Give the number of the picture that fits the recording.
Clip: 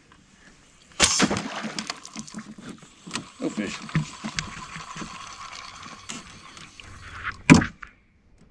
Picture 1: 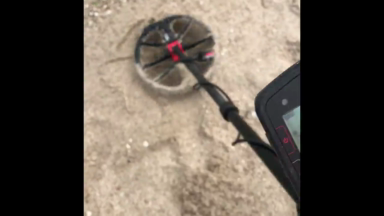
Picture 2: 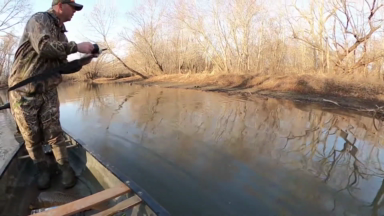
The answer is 2